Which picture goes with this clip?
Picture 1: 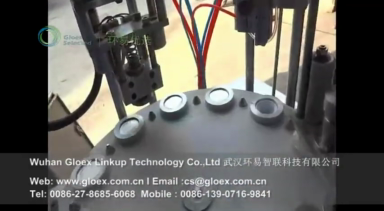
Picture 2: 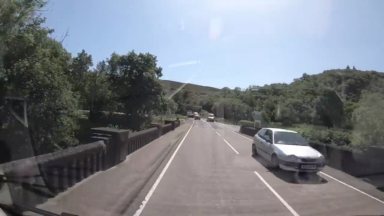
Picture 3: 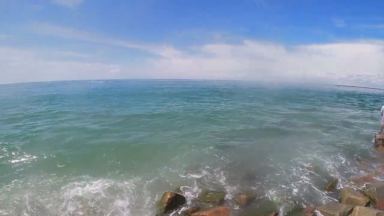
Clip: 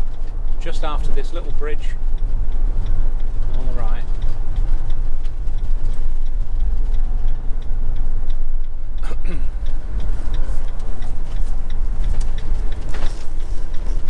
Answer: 2